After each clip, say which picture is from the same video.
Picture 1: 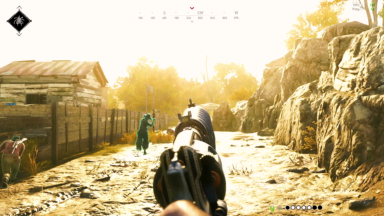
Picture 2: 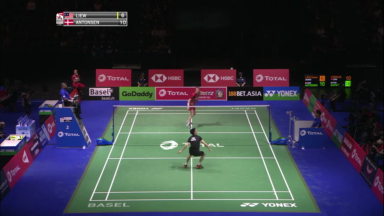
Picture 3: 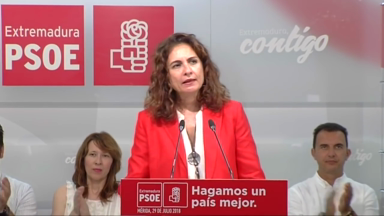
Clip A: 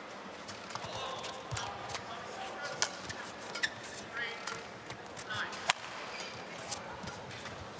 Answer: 2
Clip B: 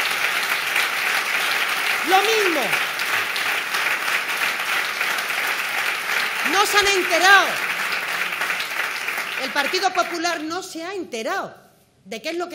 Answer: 3